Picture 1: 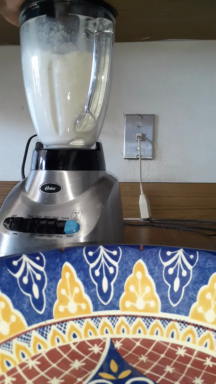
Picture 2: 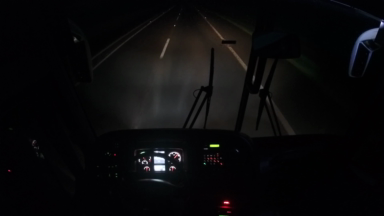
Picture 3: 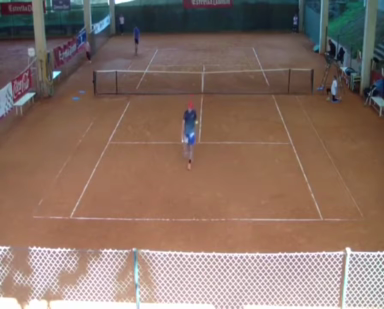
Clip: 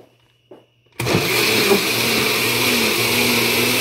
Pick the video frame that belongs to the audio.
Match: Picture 1